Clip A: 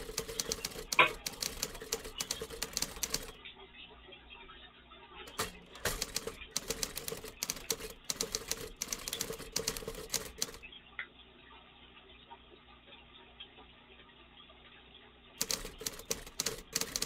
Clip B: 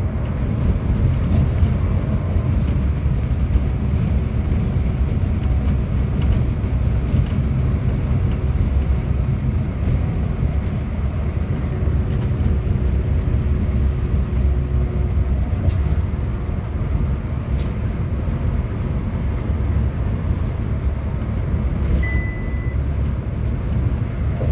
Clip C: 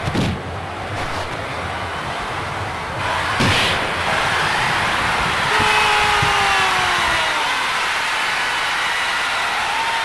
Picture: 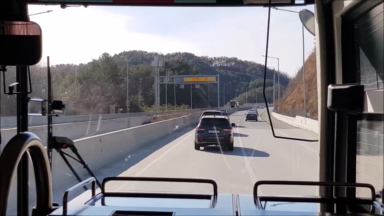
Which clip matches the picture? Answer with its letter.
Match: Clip B